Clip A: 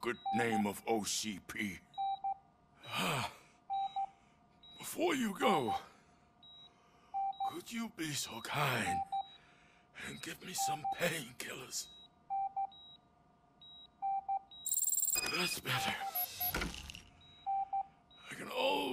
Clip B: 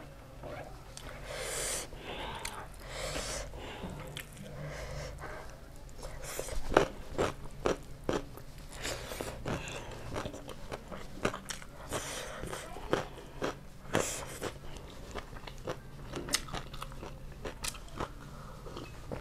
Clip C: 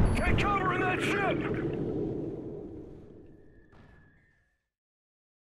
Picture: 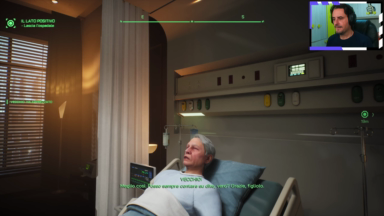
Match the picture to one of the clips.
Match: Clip A